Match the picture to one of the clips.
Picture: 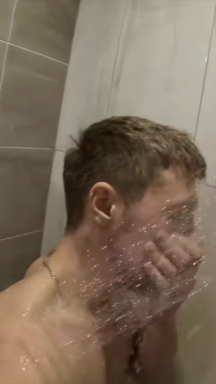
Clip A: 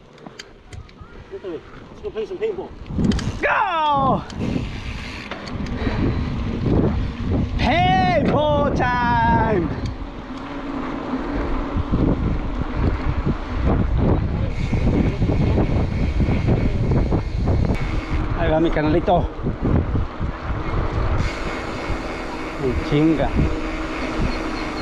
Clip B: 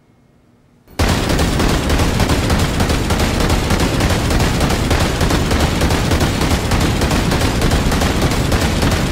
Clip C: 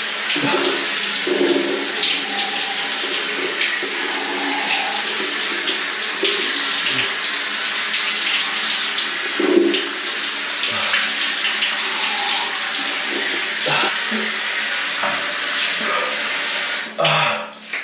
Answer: C